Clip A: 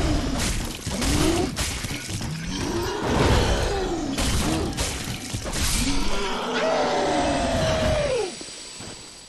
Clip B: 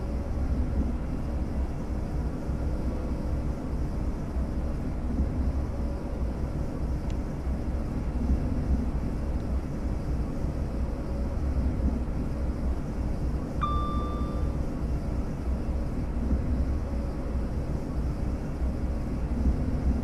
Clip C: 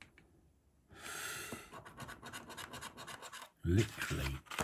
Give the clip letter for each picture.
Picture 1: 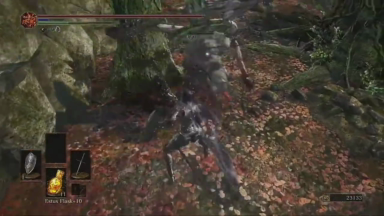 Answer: A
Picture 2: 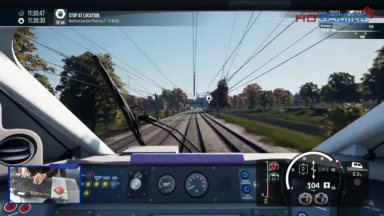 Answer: B